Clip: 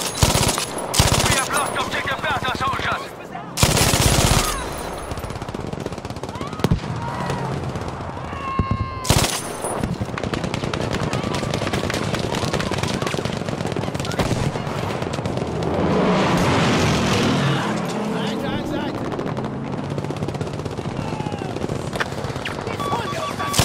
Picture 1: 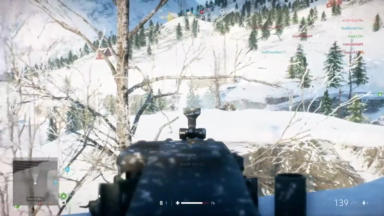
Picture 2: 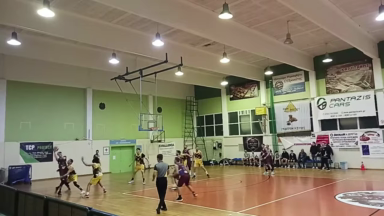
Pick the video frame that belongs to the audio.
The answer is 1